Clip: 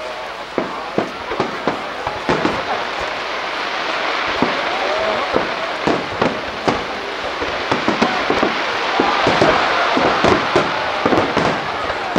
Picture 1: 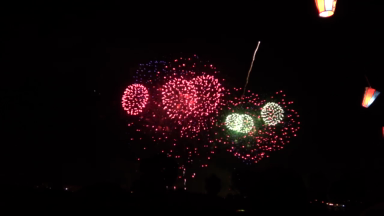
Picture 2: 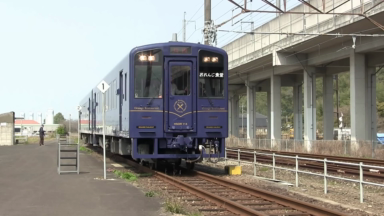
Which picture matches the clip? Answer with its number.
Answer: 1